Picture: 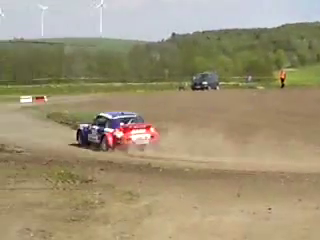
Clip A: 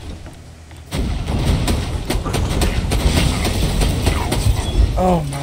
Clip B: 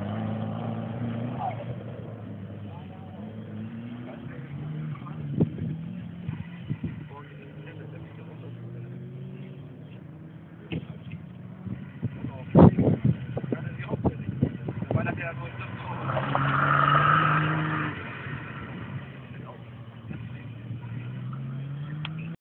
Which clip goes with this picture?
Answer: B